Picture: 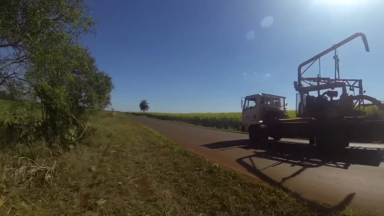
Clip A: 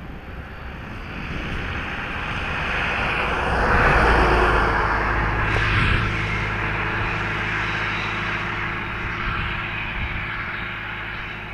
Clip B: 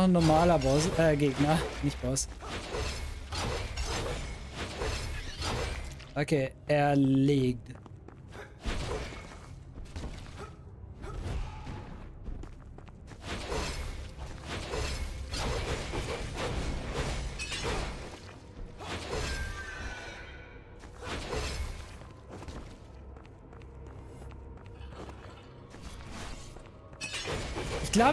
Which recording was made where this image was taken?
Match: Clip A